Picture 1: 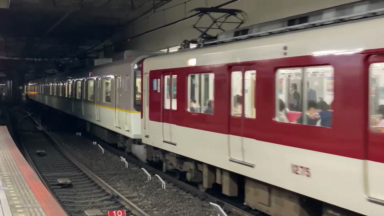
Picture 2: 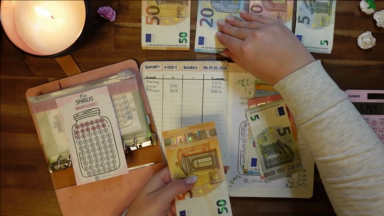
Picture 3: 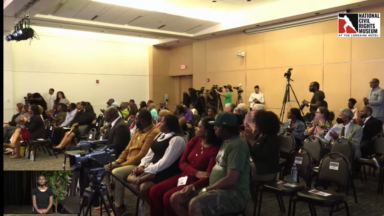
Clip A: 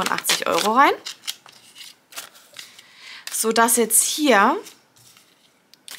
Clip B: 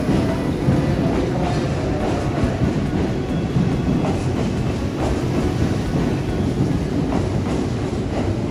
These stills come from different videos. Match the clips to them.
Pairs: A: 2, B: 1